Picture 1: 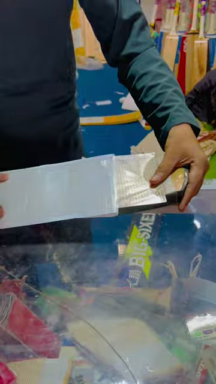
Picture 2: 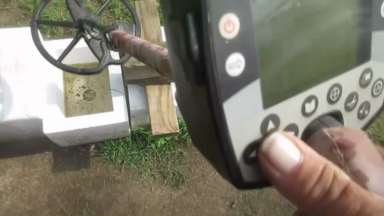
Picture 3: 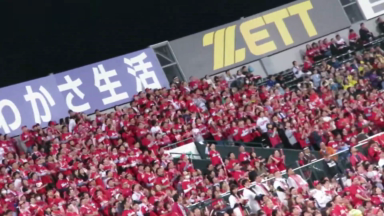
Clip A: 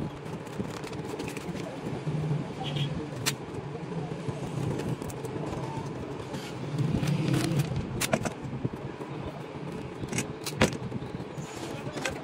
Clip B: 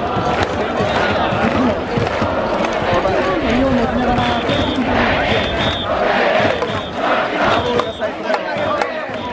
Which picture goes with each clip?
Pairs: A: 1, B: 3